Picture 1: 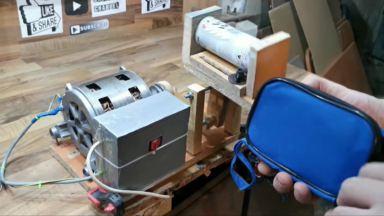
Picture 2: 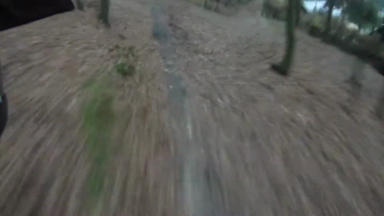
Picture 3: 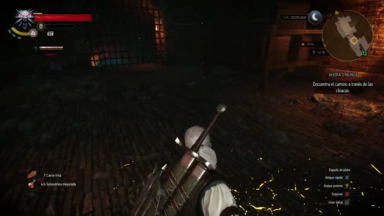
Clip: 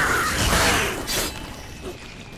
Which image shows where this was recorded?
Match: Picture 3